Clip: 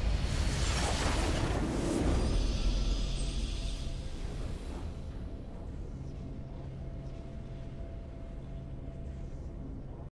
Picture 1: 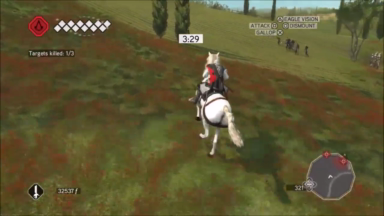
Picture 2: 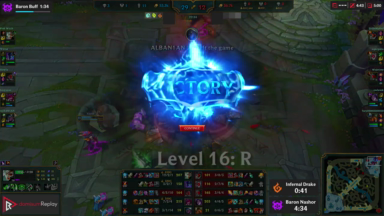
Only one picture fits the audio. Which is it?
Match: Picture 2